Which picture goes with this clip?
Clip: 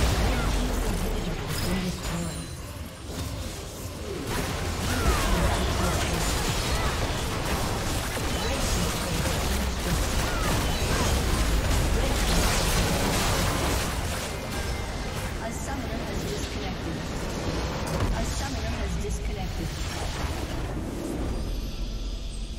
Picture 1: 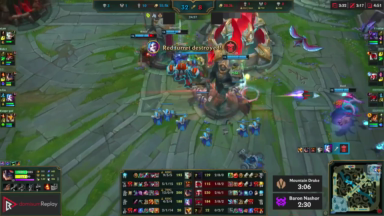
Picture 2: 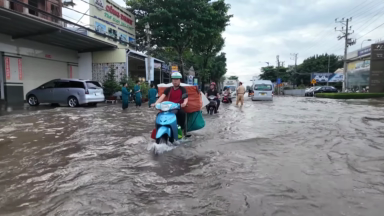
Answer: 1